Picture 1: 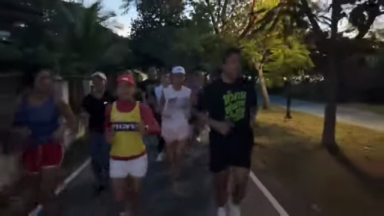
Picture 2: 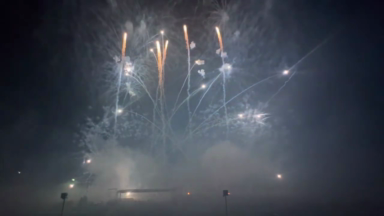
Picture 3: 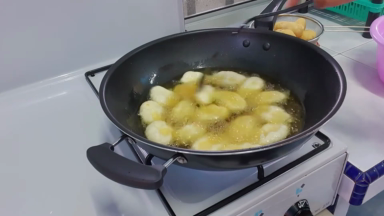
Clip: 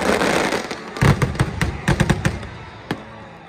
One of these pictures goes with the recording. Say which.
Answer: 2